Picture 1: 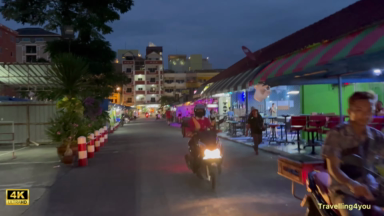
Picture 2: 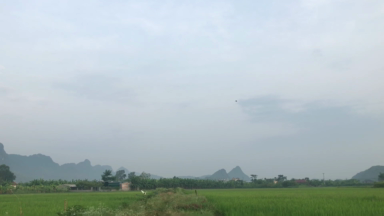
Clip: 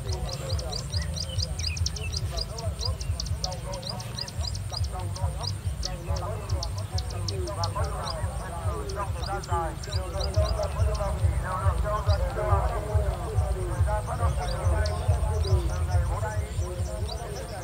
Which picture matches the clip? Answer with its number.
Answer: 2